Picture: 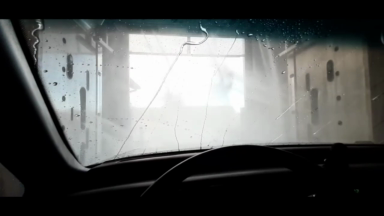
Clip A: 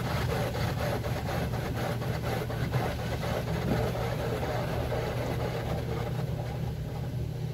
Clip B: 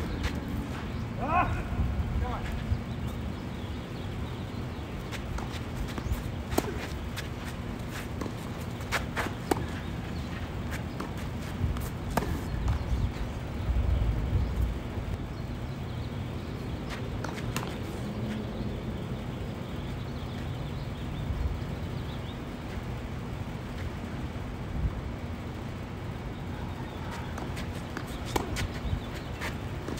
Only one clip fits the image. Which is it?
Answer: A